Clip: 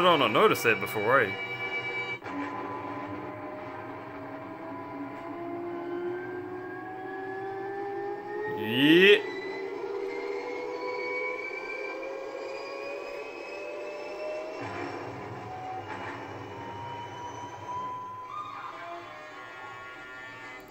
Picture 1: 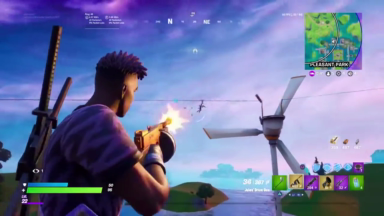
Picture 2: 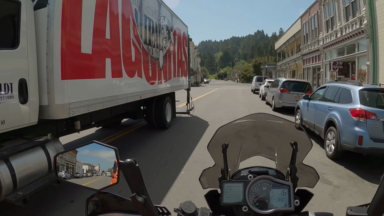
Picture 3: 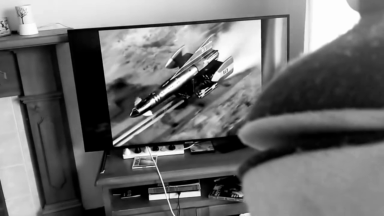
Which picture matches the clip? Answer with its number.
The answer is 3